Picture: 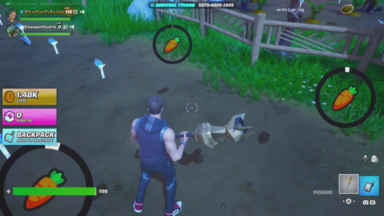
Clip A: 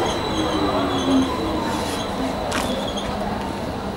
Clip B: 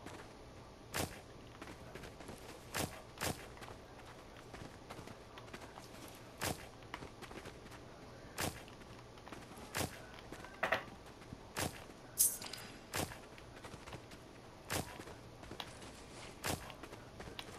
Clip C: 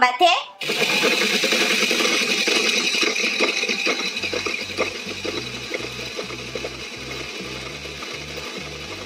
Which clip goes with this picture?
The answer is B